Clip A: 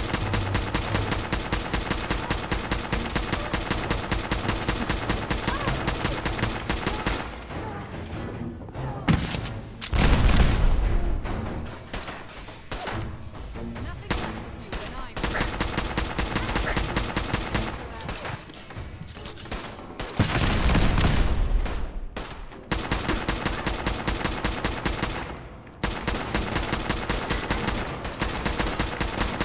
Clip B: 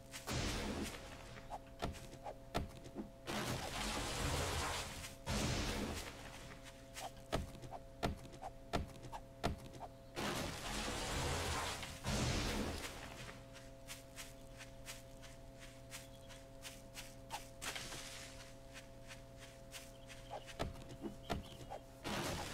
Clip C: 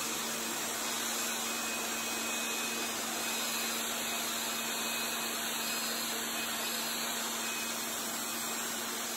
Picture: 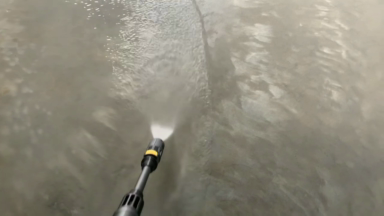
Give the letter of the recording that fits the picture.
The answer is C